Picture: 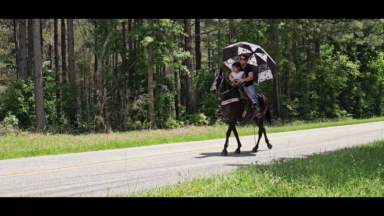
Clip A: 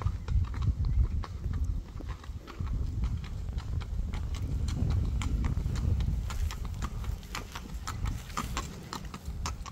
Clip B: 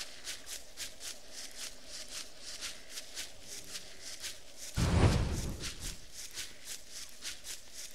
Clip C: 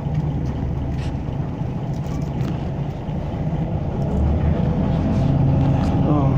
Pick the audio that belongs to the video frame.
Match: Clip A